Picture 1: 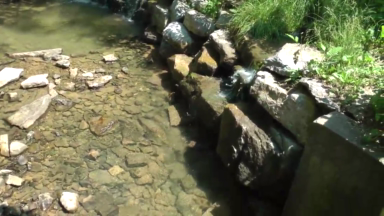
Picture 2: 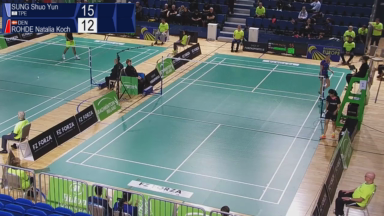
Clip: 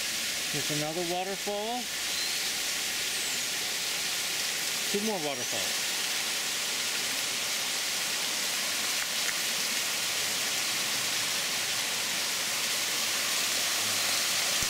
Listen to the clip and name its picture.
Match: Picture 1